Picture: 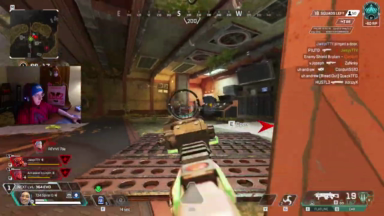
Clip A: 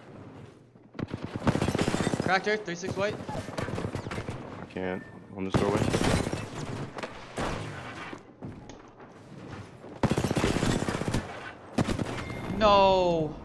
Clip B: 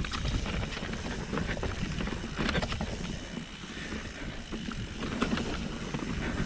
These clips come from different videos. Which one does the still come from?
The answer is A